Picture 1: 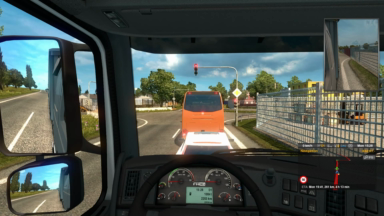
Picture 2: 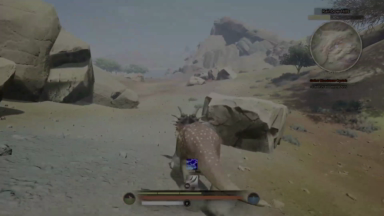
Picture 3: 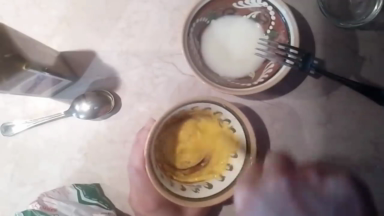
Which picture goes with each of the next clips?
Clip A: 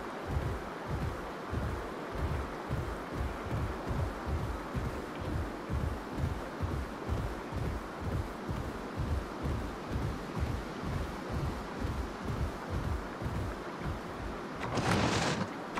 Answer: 2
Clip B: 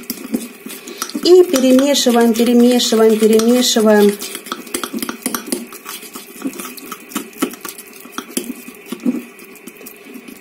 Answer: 3